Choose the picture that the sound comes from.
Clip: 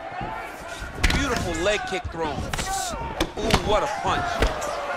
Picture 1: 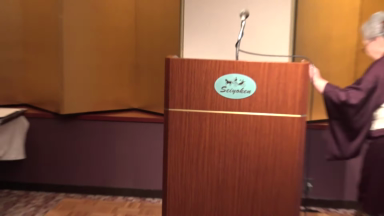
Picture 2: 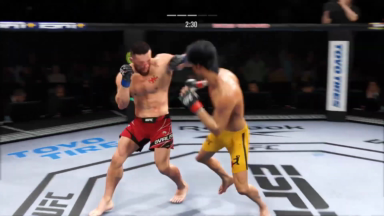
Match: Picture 2